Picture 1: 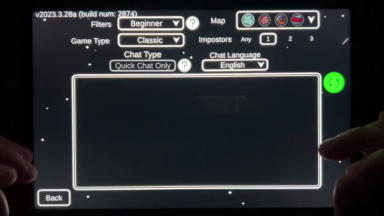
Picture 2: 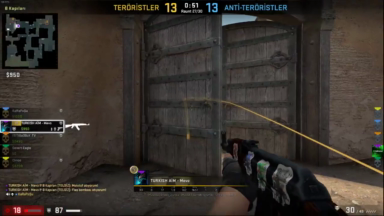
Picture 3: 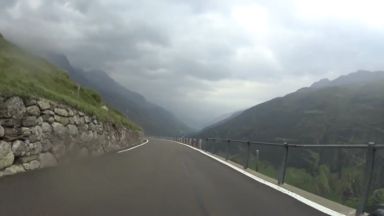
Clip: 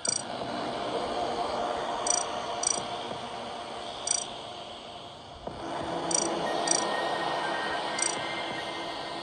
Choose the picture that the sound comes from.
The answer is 1